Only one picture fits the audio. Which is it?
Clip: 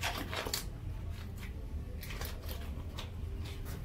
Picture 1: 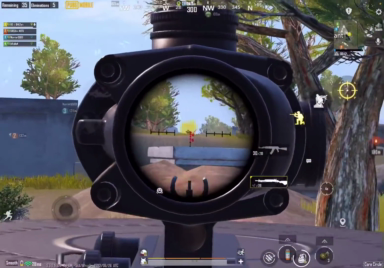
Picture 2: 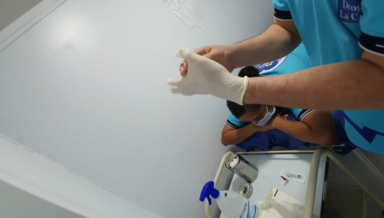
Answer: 2